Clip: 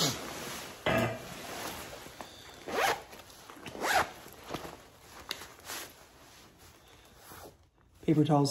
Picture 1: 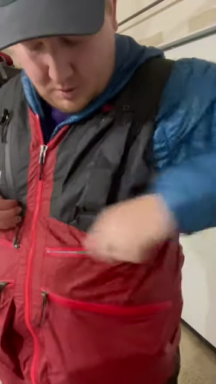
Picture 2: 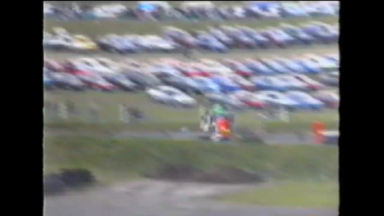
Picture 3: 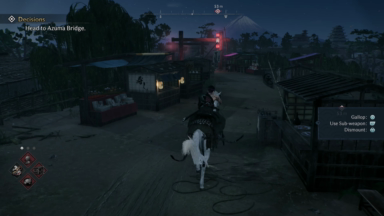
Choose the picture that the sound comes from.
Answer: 1